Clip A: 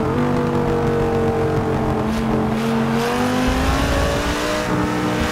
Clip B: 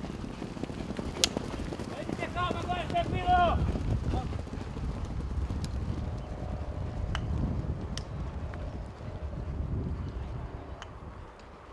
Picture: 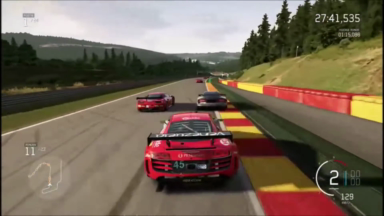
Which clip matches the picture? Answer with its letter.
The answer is A